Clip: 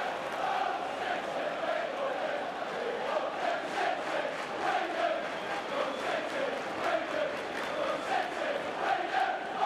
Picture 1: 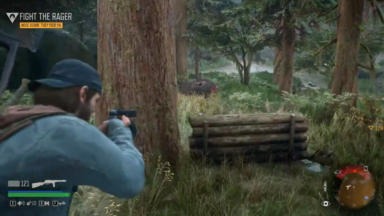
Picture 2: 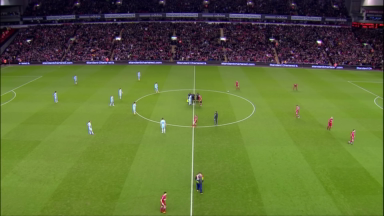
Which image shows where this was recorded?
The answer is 2